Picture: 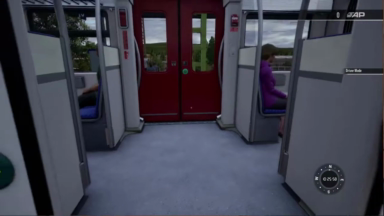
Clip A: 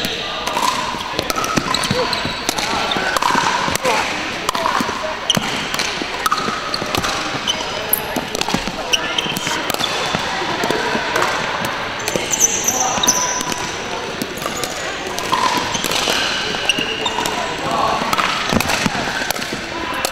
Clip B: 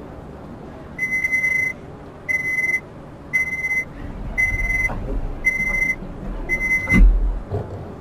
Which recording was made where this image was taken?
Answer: B